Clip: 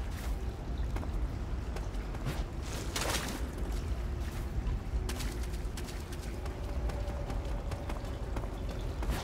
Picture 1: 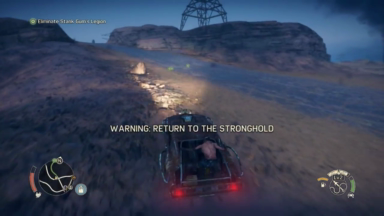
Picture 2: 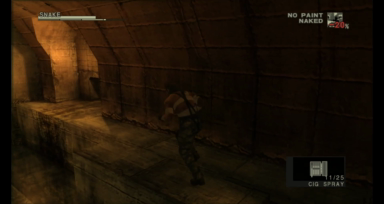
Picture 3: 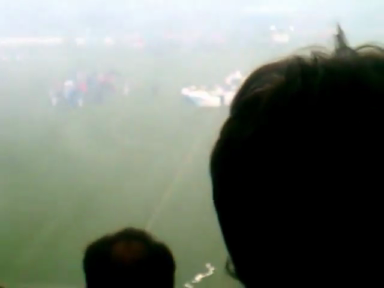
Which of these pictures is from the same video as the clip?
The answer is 2